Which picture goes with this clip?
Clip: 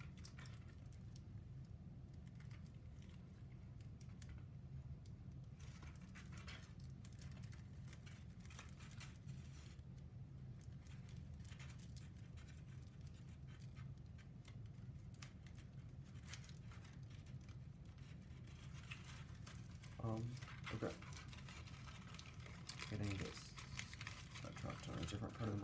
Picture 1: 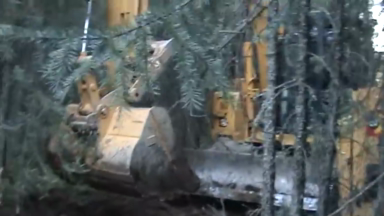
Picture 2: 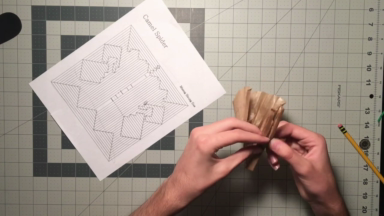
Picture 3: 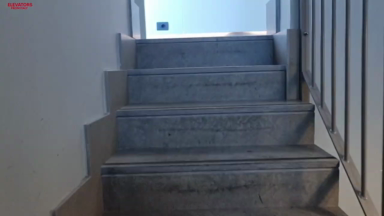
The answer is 2